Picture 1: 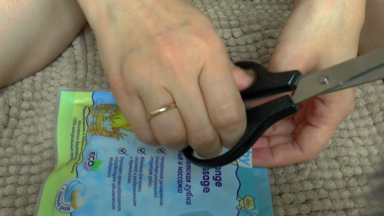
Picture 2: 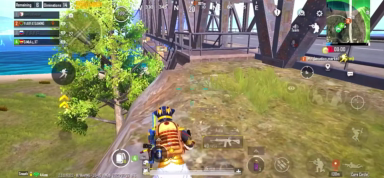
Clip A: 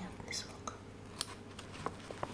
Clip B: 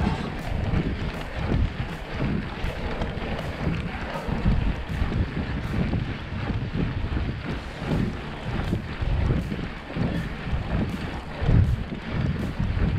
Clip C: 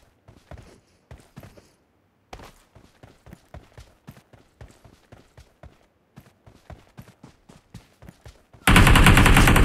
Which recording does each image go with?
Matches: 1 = A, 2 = C